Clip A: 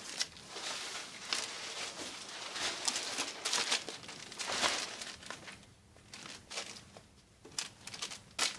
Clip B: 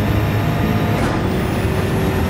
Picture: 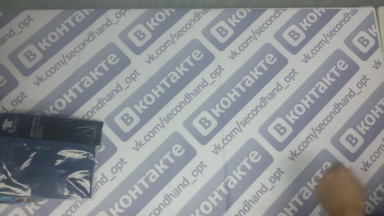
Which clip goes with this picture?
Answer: A